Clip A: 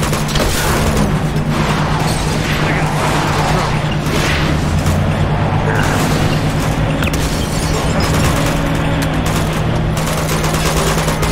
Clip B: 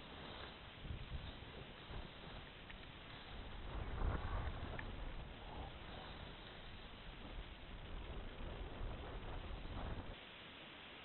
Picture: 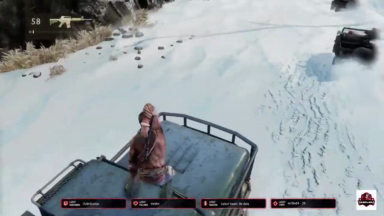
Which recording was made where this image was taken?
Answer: A